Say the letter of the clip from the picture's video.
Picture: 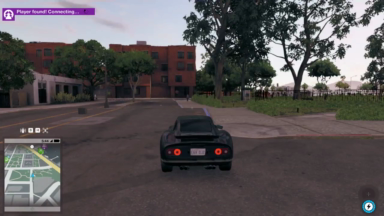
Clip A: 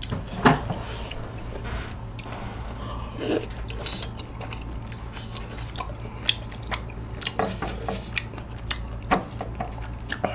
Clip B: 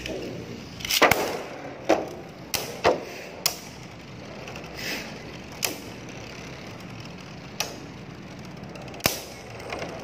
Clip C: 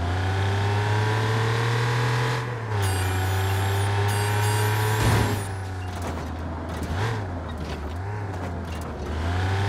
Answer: C